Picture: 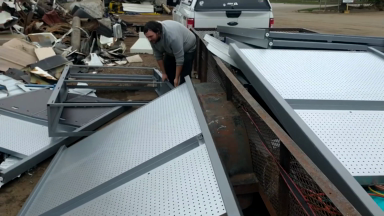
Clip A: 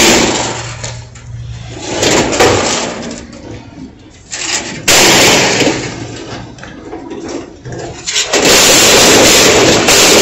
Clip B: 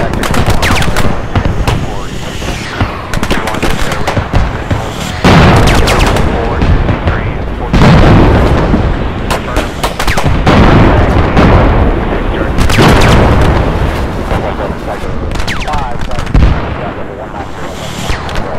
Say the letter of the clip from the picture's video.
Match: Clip A